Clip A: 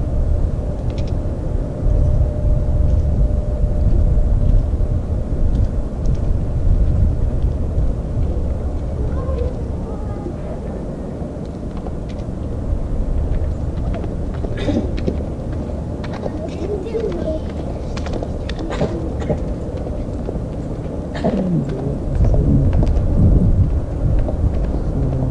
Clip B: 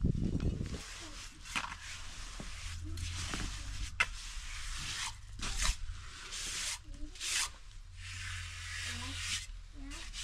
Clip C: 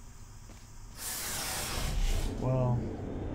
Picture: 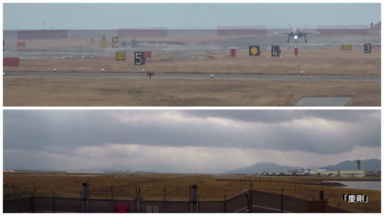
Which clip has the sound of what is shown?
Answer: A